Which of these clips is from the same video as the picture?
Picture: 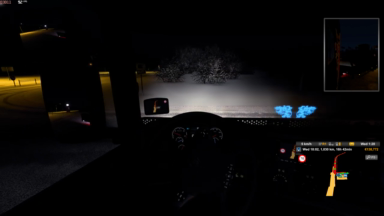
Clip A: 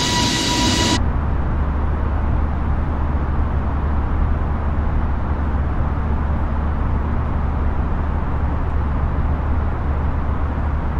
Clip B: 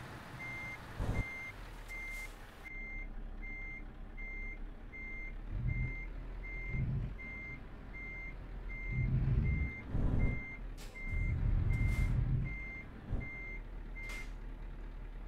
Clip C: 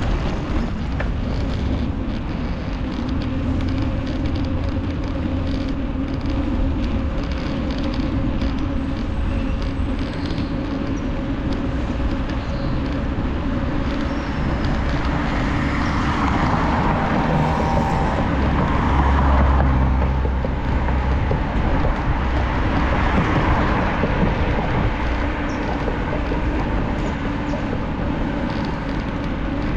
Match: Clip B